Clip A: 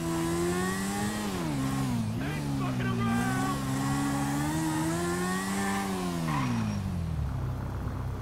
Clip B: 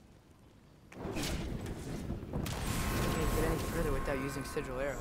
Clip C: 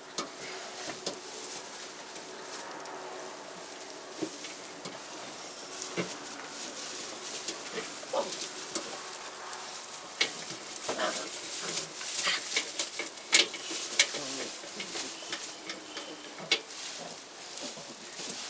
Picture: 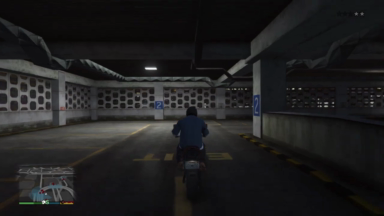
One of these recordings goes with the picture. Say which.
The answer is A